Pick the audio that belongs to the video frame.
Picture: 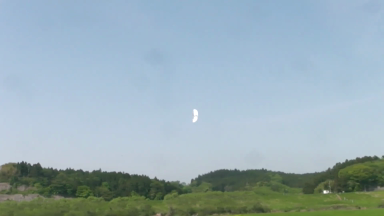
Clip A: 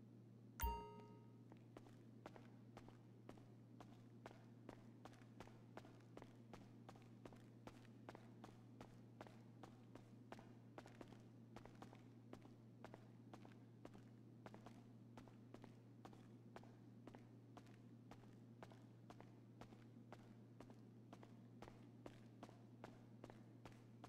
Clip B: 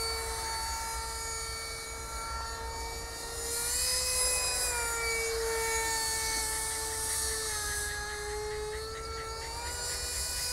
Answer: B